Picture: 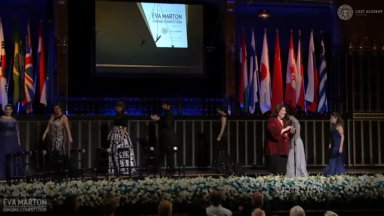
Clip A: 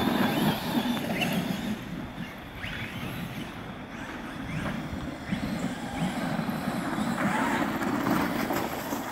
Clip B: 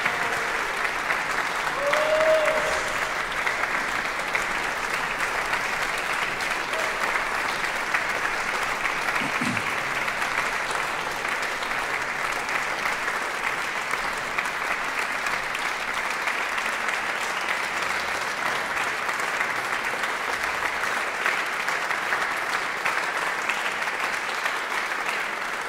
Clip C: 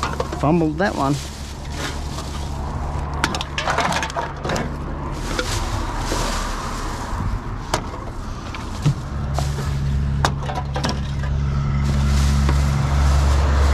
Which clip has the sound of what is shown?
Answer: B